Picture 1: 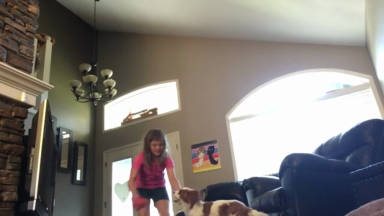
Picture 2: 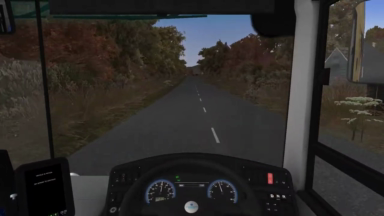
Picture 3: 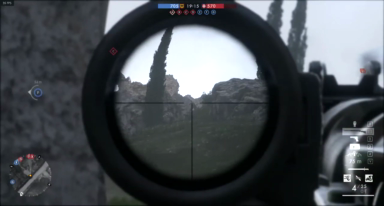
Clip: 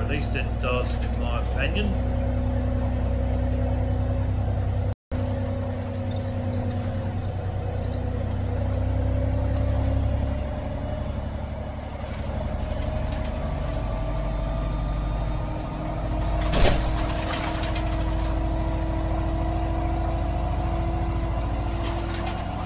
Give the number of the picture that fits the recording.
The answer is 2